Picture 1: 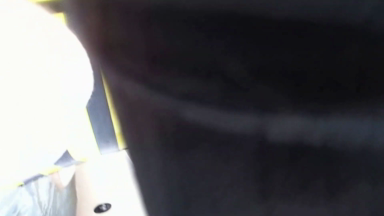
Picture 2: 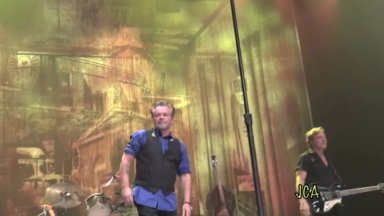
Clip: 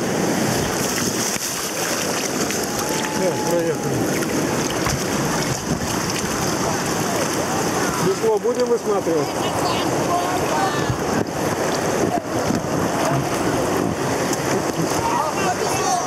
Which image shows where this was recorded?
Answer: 1